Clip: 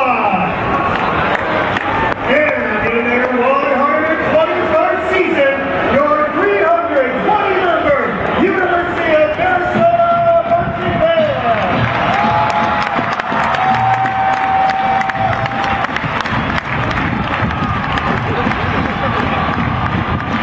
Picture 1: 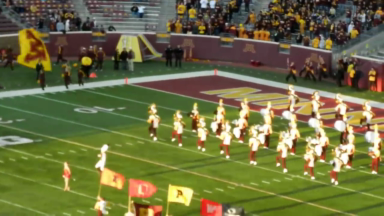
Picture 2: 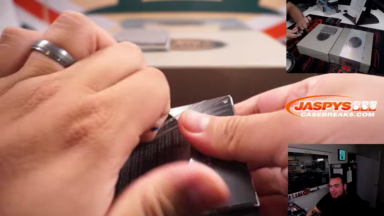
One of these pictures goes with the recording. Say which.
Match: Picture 1